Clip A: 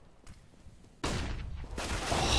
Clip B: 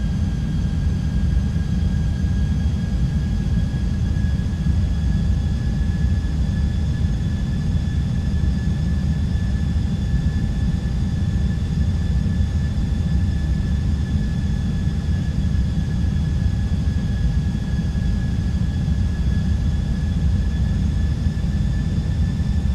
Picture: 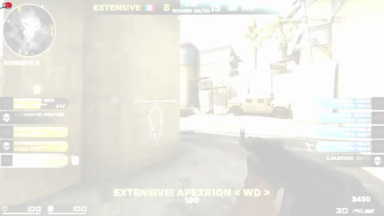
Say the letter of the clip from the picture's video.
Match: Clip A